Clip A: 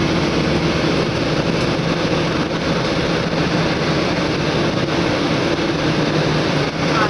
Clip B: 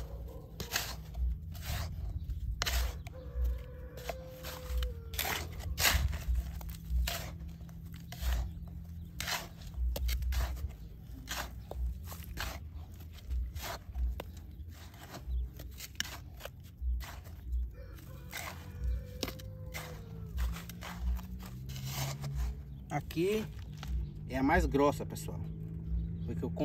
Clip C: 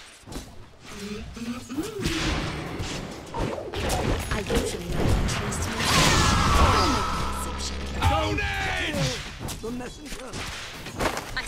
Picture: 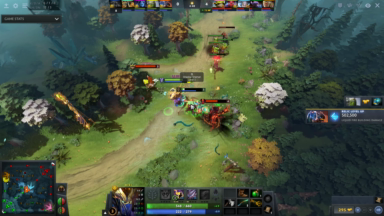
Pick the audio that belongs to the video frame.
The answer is C